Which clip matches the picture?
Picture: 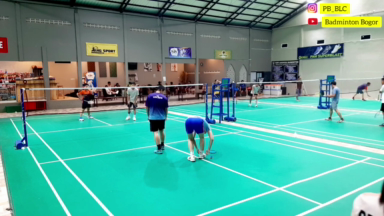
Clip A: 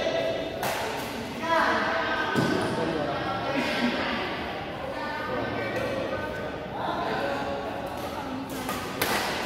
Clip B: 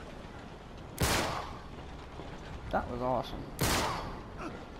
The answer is A